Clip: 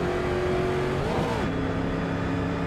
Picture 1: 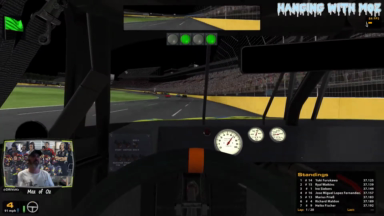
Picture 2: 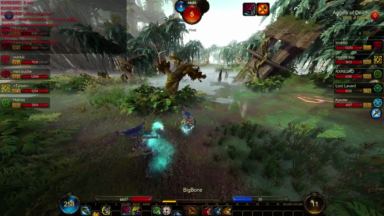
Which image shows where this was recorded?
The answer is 1